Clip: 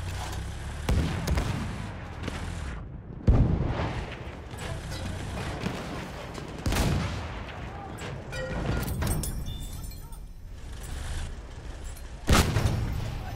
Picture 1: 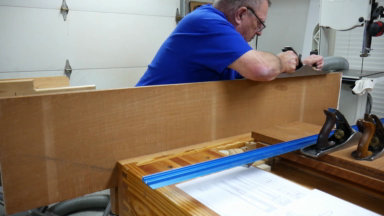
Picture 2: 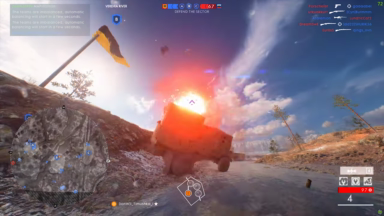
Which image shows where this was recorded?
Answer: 2